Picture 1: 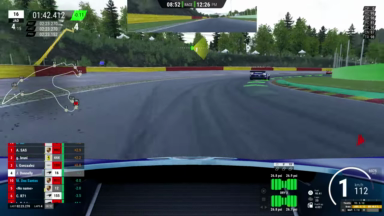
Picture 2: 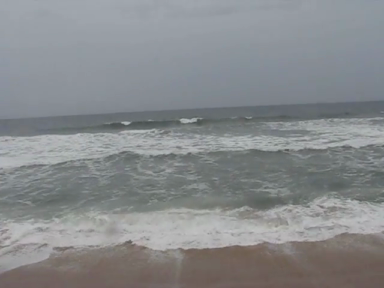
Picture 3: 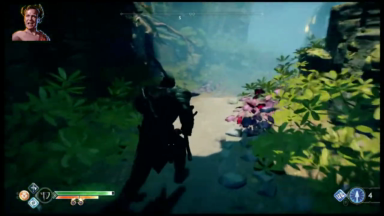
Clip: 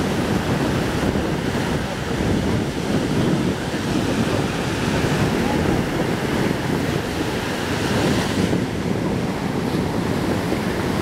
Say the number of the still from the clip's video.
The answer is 2